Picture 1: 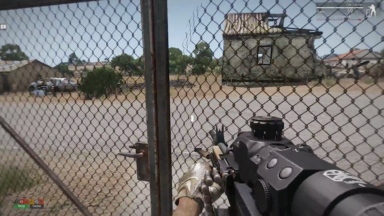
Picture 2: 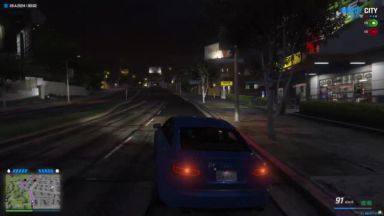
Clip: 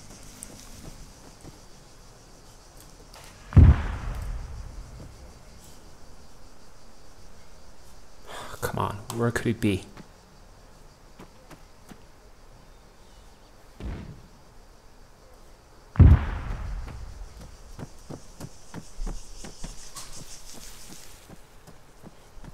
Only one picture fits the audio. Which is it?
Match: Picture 1